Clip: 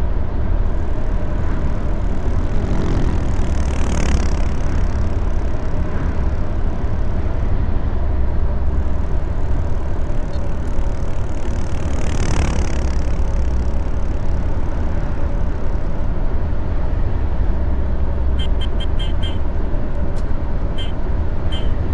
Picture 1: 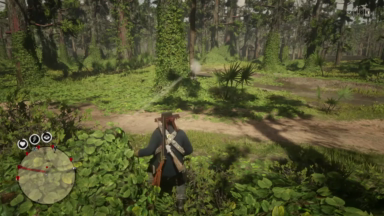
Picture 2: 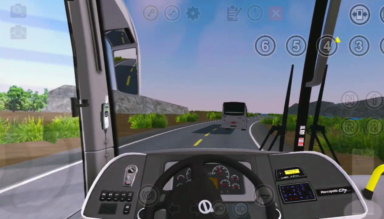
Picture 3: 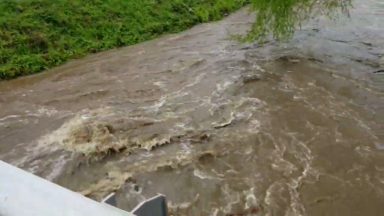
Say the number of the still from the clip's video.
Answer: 2